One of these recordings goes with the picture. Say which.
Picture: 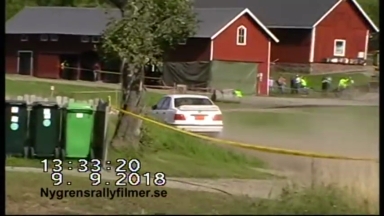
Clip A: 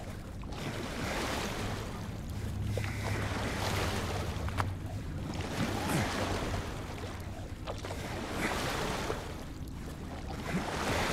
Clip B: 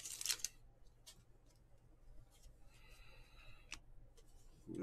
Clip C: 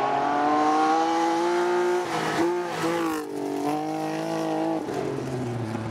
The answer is C